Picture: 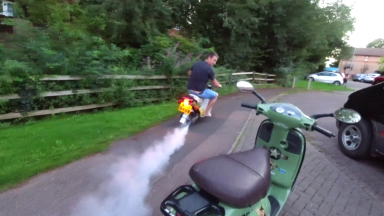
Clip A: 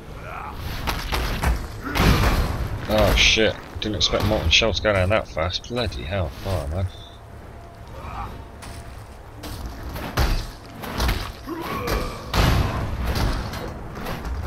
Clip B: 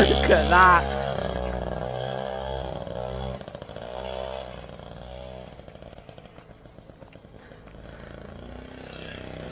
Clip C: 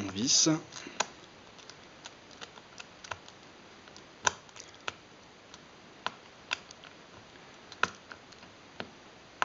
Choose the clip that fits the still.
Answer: B